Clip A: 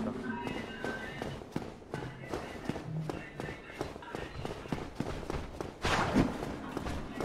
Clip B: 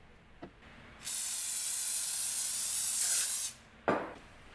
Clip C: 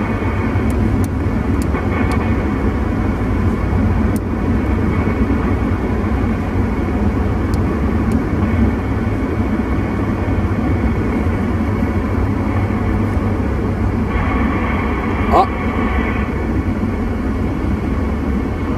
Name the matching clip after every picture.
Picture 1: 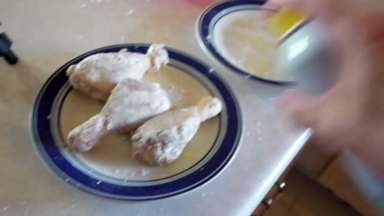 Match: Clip B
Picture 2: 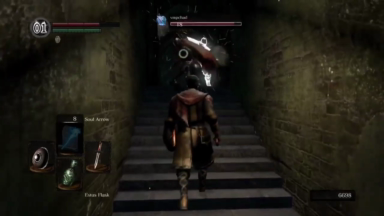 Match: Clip A